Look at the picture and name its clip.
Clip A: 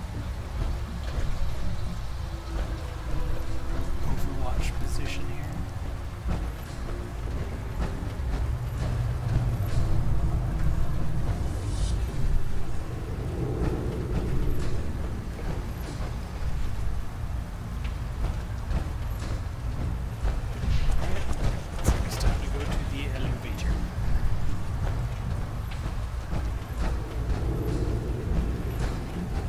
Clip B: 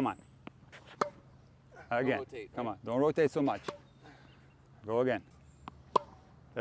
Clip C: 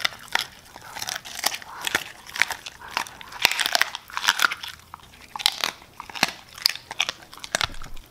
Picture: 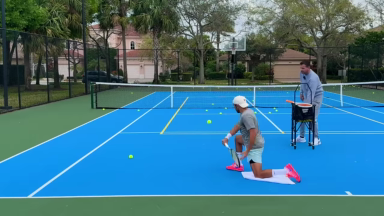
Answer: B